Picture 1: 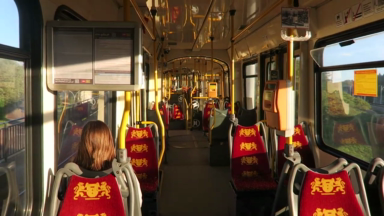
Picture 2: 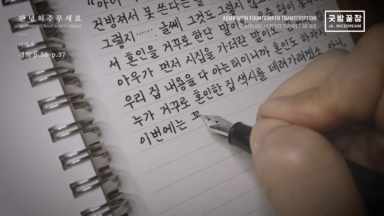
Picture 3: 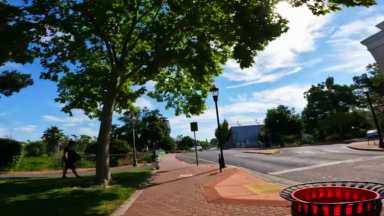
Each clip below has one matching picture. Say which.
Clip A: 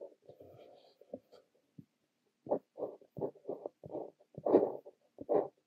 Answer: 2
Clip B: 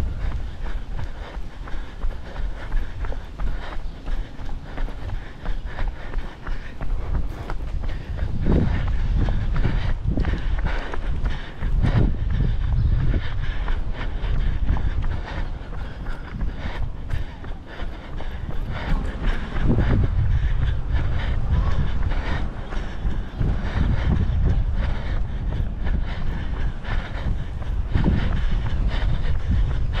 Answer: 3